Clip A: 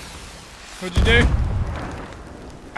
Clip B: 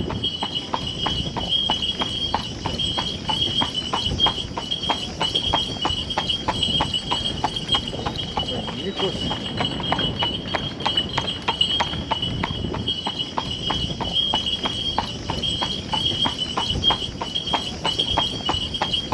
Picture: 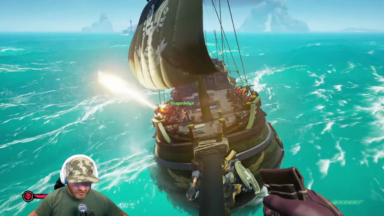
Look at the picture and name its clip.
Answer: A